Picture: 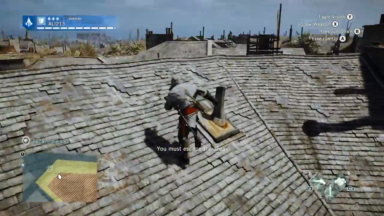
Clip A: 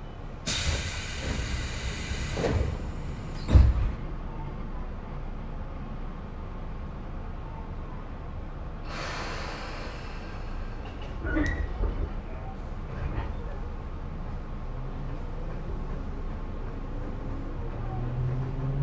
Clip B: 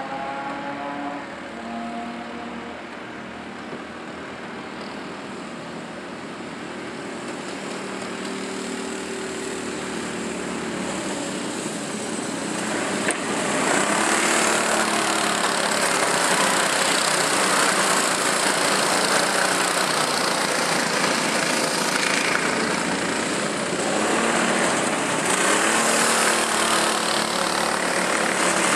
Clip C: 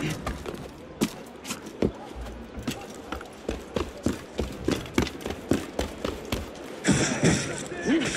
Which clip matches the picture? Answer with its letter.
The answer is C